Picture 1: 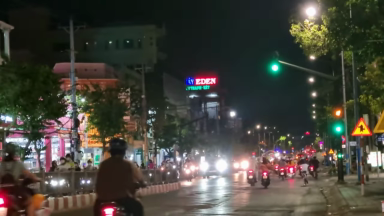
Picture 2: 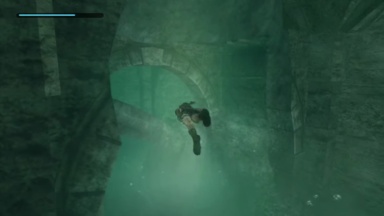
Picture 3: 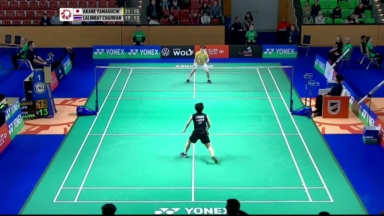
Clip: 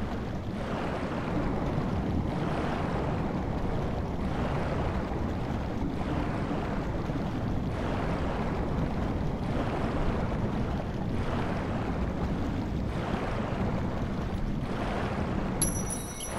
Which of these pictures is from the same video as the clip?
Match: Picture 2